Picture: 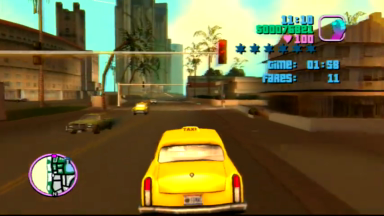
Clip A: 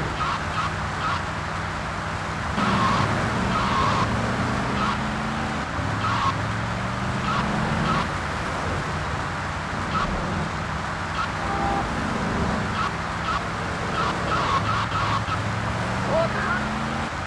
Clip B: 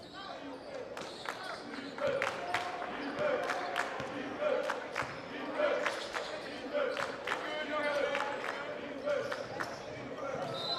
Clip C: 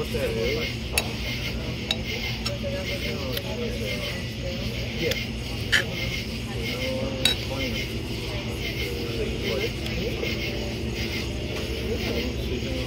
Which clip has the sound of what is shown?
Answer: A